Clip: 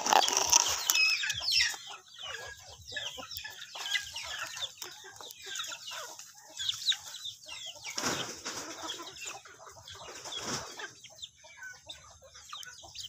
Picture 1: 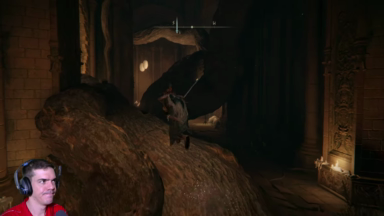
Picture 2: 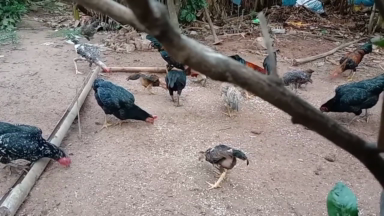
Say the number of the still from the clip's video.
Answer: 2